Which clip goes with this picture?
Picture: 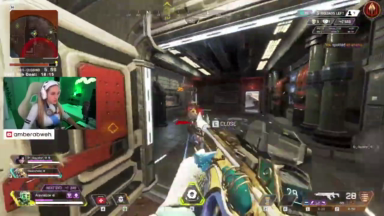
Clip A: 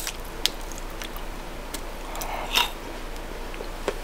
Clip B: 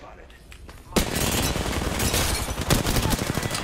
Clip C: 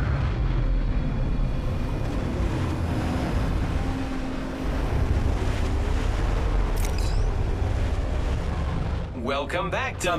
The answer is B